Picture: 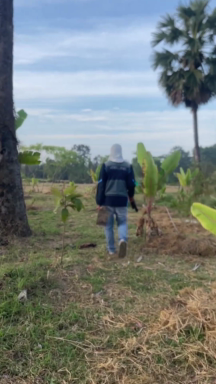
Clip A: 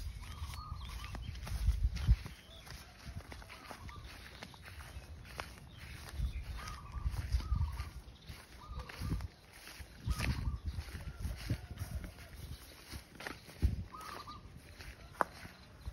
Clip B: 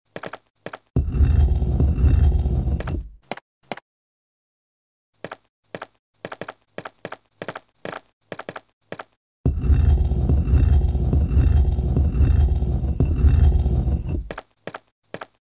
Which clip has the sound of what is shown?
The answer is A